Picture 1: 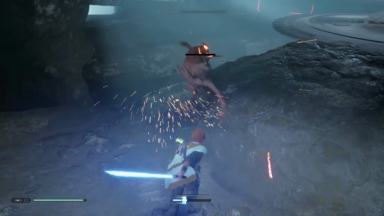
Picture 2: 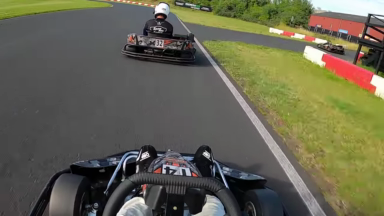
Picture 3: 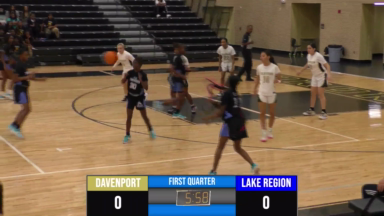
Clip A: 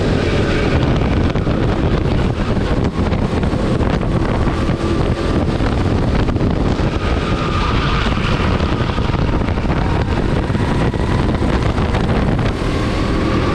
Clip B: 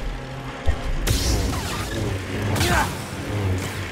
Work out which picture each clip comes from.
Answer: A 2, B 1